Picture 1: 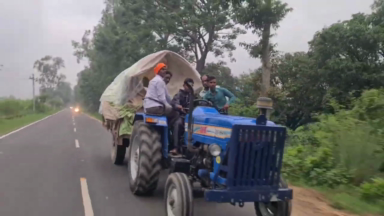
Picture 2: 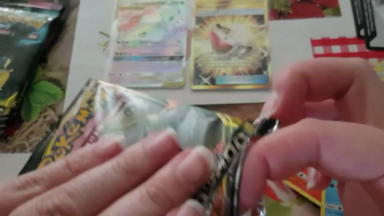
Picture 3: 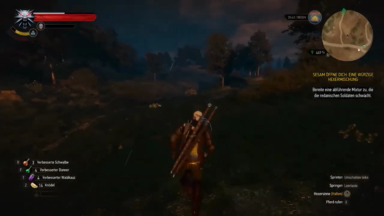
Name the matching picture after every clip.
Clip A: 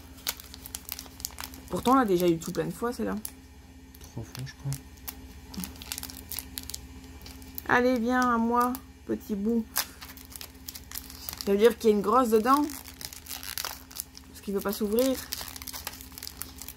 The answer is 2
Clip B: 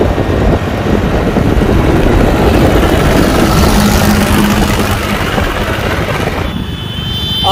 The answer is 1